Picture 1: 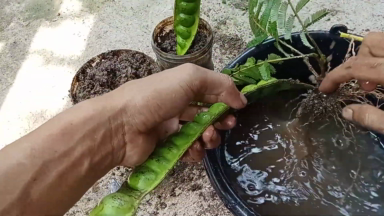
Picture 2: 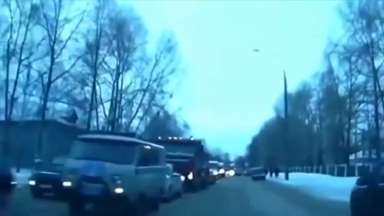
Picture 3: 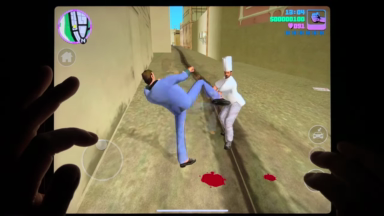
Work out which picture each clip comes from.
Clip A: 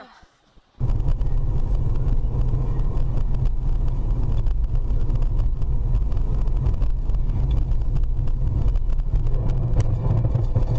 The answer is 2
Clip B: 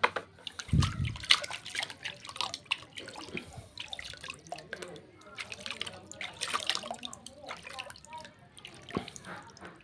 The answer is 1